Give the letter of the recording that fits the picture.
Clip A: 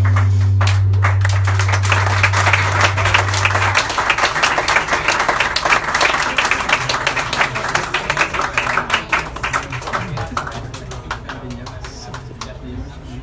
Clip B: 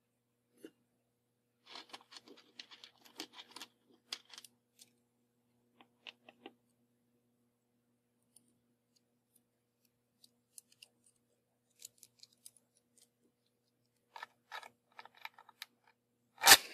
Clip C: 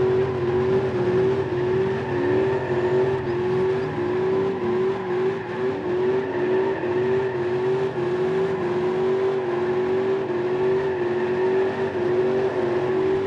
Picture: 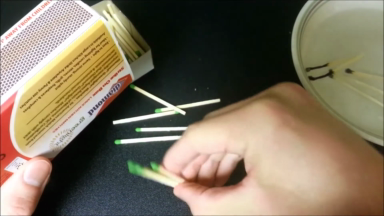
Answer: B